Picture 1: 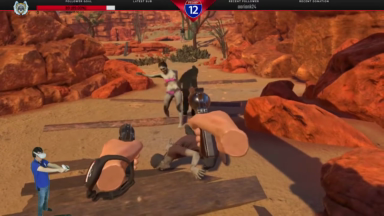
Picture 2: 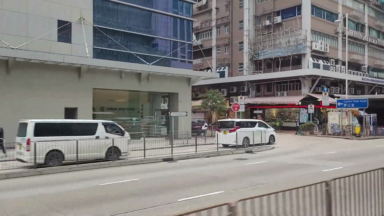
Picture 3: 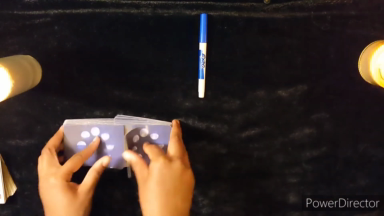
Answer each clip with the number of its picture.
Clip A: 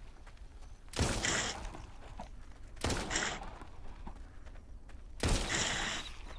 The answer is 1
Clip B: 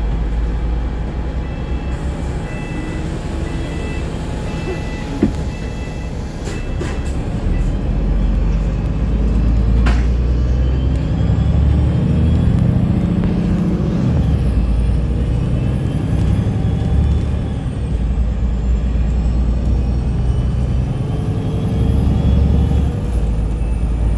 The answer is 2